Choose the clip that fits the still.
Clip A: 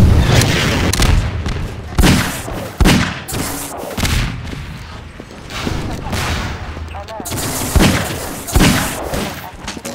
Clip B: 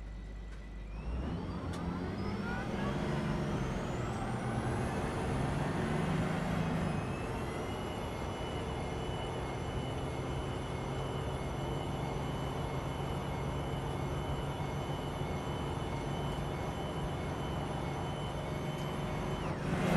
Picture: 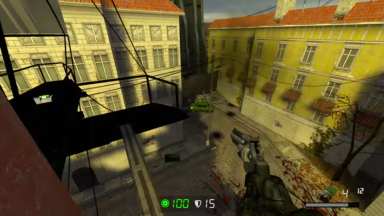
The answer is A